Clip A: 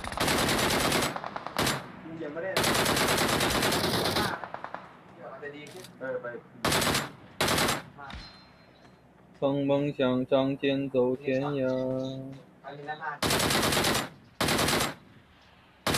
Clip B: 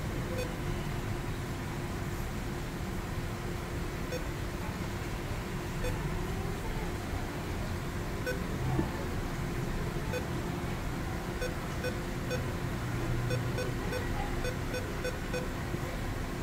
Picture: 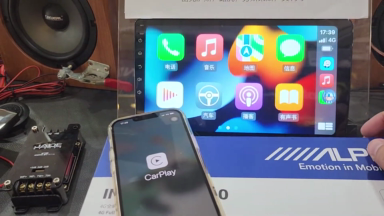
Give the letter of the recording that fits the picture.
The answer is B